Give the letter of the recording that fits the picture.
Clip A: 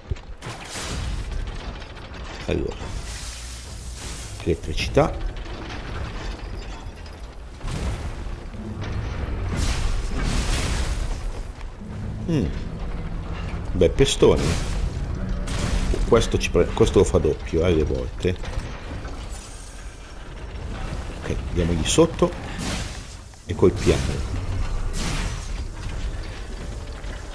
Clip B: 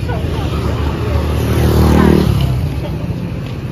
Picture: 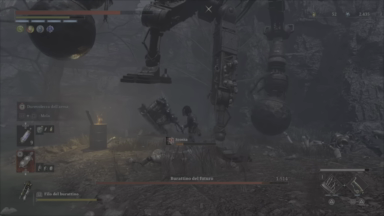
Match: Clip A